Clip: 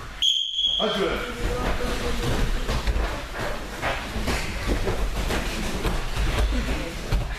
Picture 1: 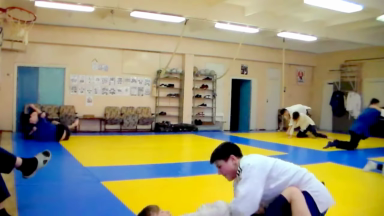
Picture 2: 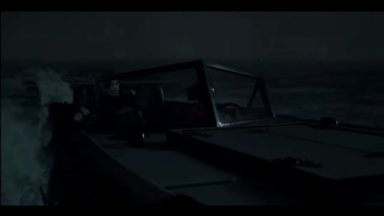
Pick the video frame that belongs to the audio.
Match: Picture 1